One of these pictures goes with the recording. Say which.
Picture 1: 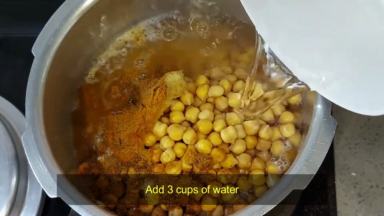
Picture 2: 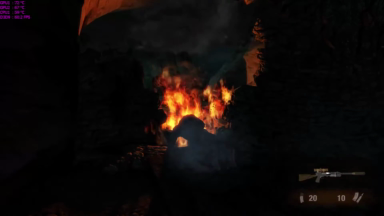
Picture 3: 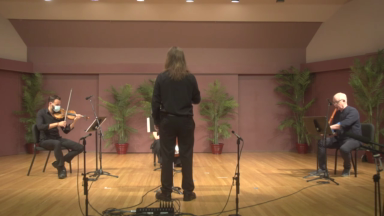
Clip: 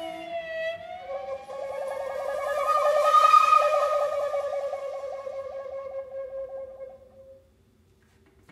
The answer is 3